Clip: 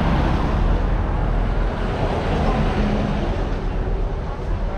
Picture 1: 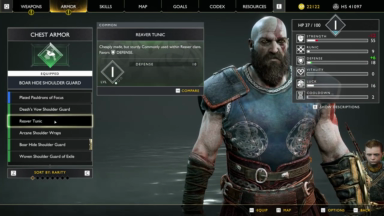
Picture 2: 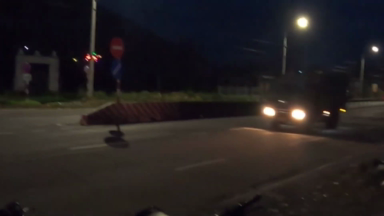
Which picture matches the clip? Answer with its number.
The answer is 2